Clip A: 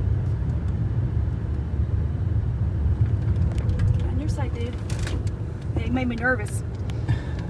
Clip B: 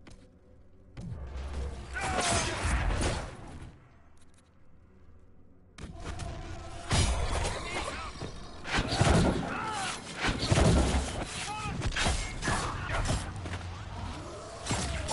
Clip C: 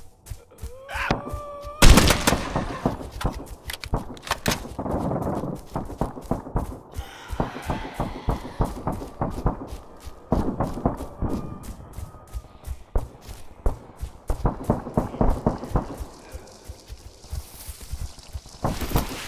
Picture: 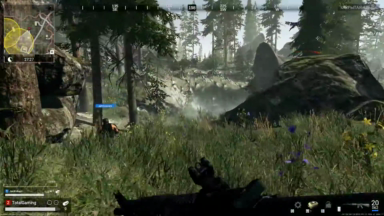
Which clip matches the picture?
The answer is C